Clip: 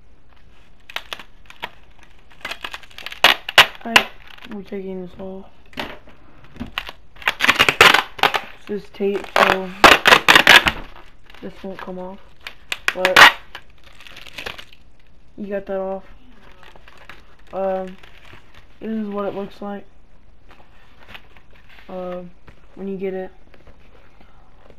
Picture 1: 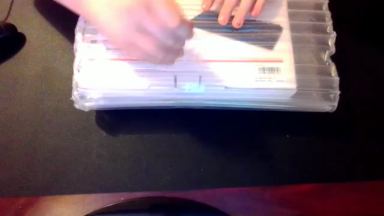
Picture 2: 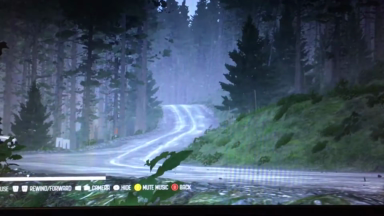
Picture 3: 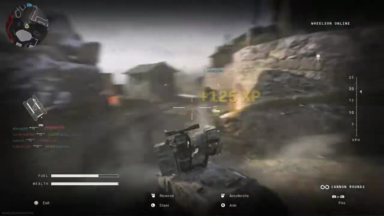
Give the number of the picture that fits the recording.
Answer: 1